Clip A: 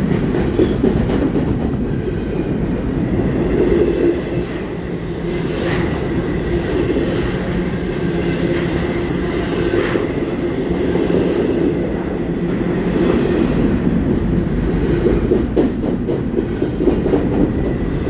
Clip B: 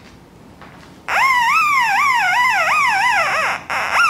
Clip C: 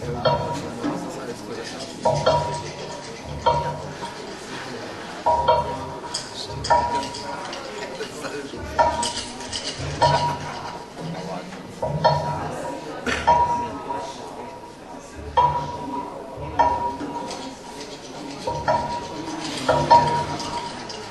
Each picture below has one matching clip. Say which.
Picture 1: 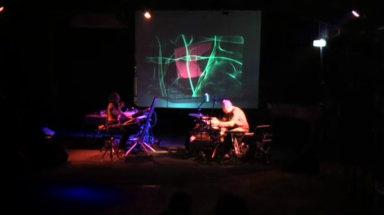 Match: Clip C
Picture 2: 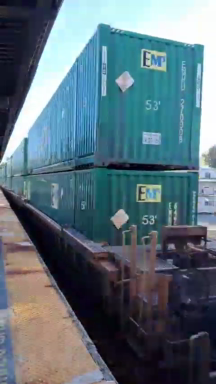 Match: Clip A